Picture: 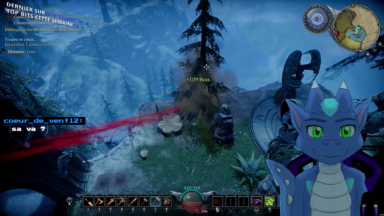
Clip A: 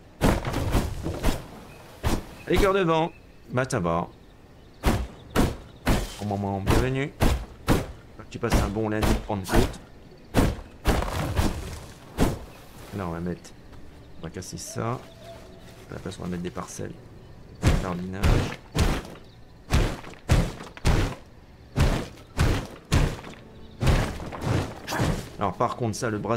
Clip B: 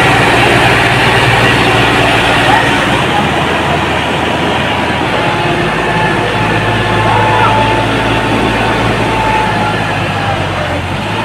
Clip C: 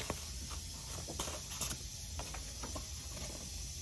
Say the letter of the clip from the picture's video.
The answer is A